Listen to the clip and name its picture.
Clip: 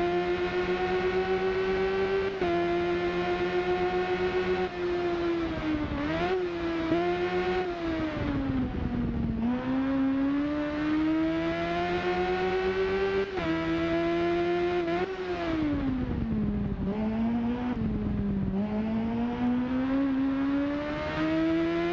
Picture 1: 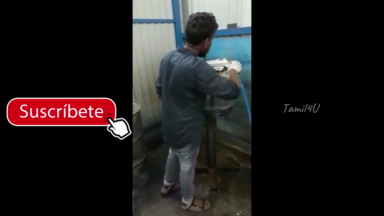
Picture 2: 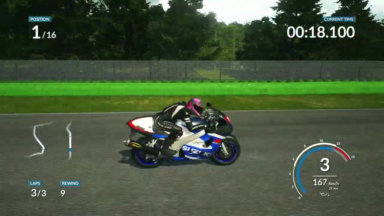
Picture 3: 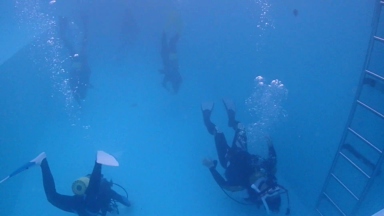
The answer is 2